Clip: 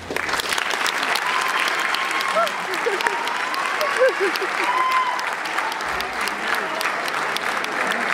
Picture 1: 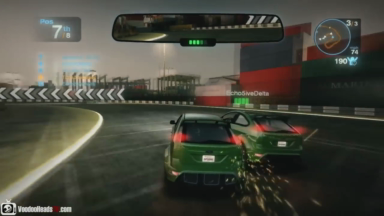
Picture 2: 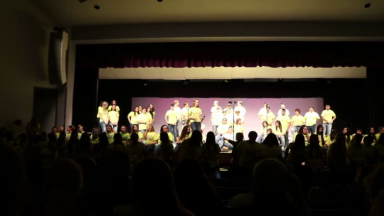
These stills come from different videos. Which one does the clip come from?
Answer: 2